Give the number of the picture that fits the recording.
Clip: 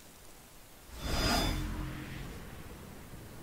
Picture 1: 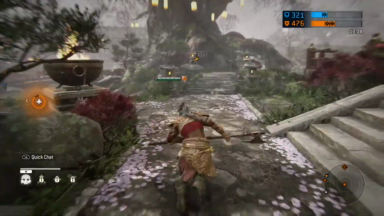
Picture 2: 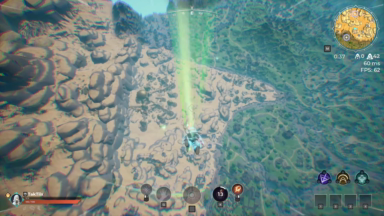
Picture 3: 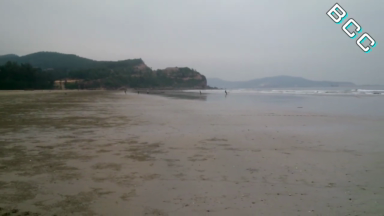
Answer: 2